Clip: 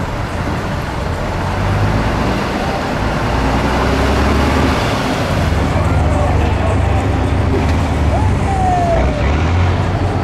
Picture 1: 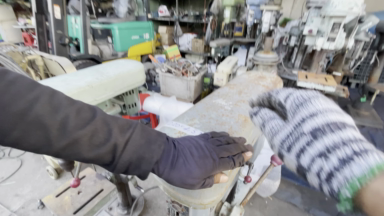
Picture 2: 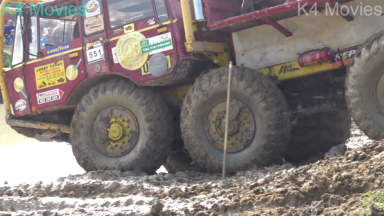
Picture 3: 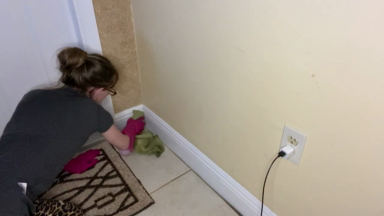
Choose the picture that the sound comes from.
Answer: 2